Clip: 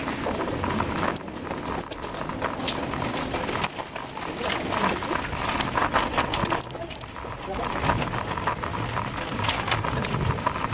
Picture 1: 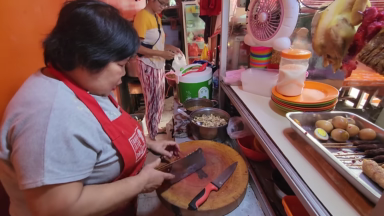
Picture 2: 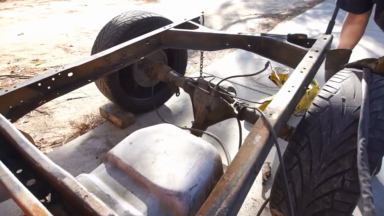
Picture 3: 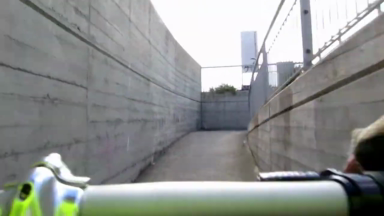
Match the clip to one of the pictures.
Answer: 3